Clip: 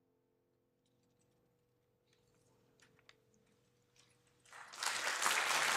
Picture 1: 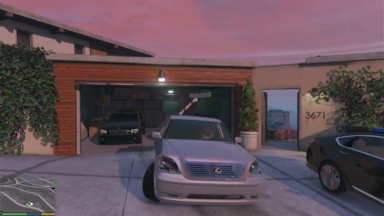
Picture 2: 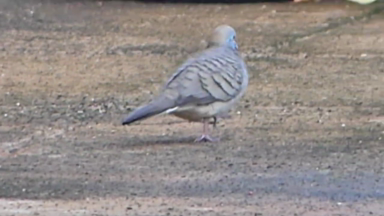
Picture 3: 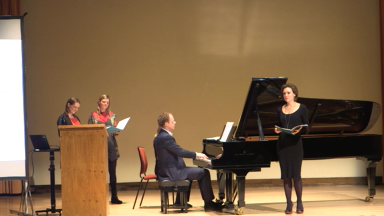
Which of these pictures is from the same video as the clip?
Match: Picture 3